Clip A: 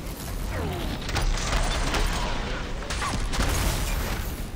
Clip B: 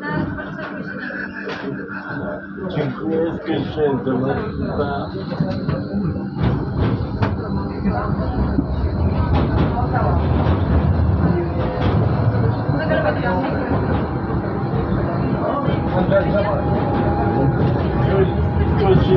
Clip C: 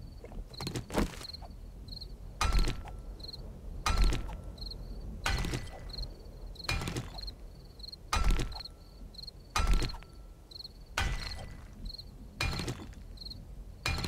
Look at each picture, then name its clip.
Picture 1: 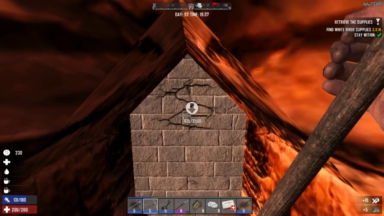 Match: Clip C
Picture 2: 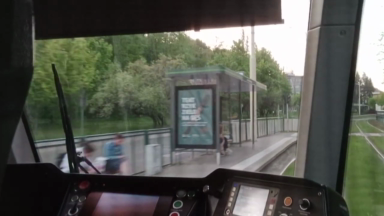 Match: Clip B